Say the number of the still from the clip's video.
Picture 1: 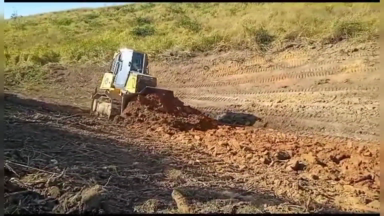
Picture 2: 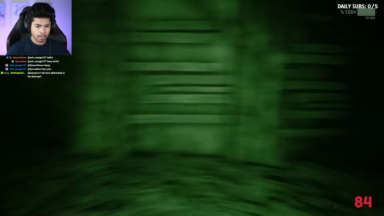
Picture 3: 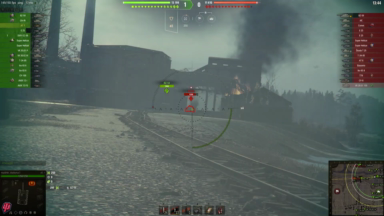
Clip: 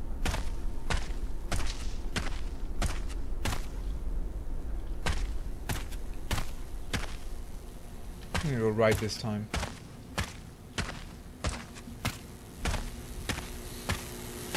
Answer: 2